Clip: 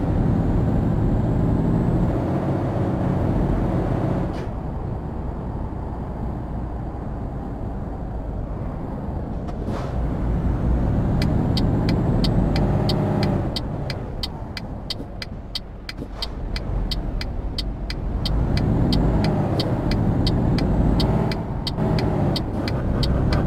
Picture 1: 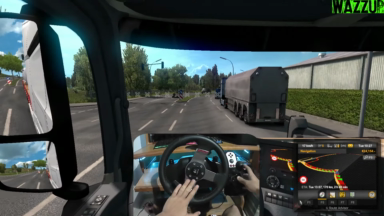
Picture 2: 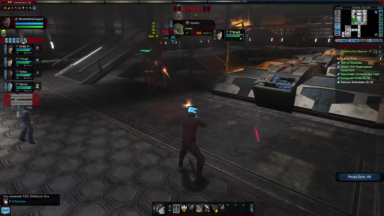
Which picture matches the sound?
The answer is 1